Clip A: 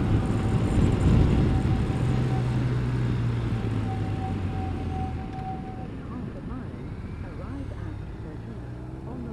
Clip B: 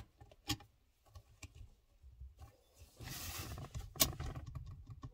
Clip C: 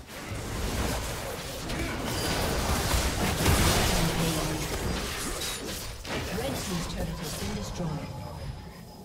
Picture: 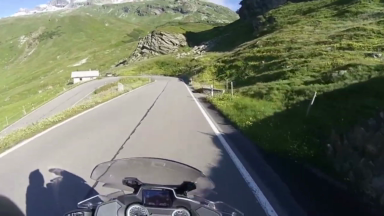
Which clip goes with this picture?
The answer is A